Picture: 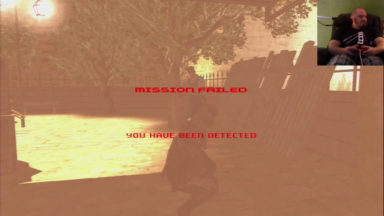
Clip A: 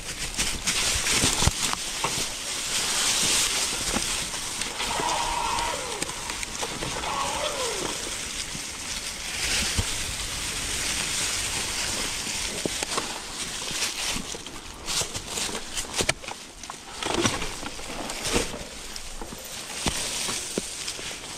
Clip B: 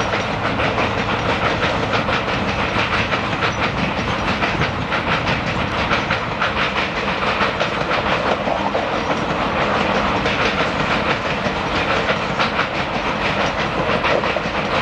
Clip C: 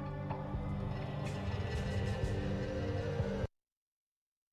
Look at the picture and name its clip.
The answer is C